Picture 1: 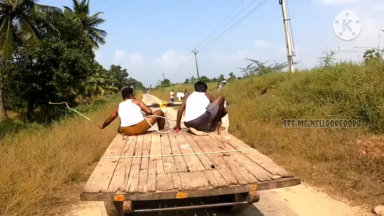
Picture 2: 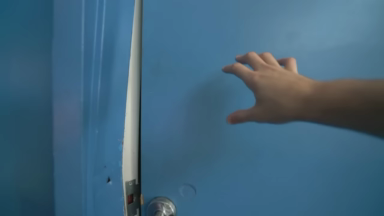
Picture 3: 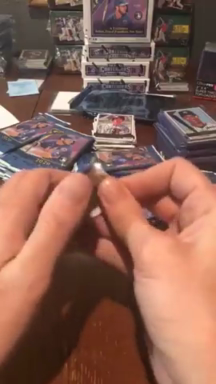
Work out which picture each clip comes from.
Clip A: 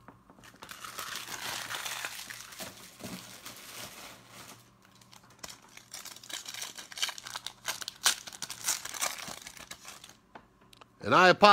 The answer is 3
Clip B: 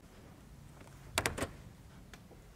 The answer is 2